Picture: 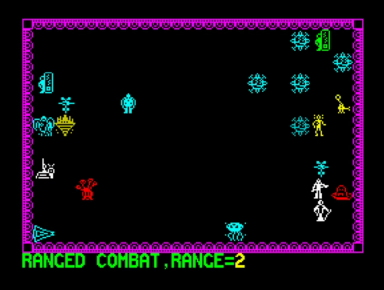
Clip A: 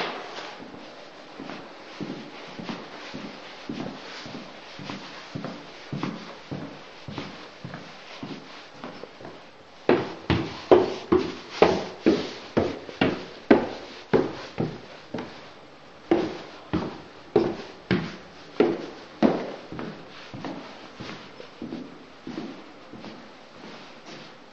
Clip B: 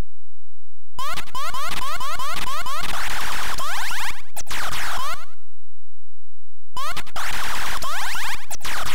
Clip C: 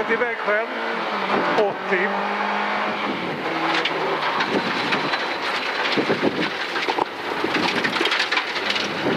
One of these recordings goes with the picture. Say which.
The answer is B